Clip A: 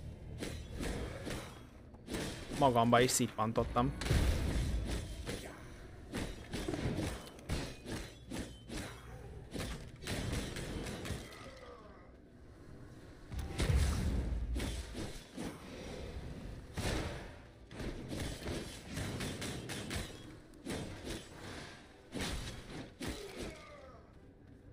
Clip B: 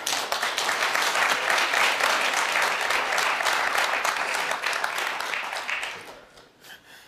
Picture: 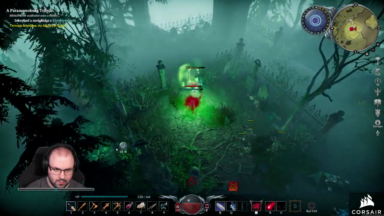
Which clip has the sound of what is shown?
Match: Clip A